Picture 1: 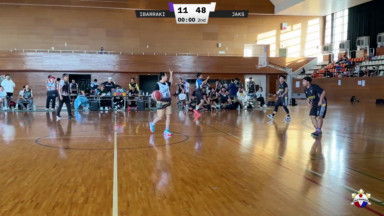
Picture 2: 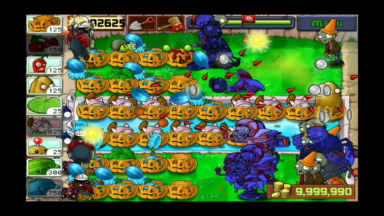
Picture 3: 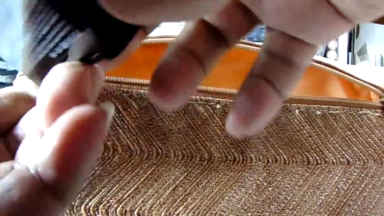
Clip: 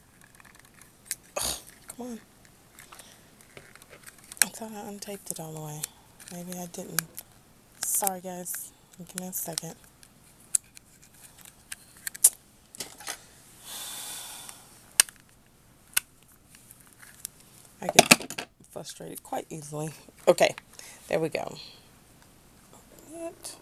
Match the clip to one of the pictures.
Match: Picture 3